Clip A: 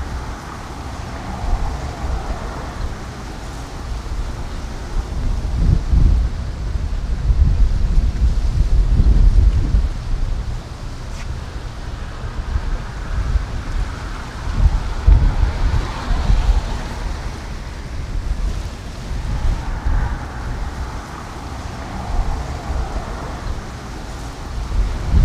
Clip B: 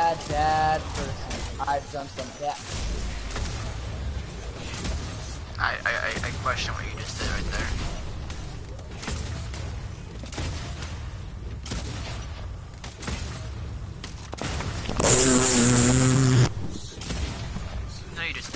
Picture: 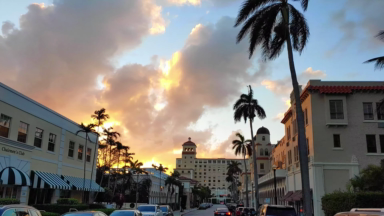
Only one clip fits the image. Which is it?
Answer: A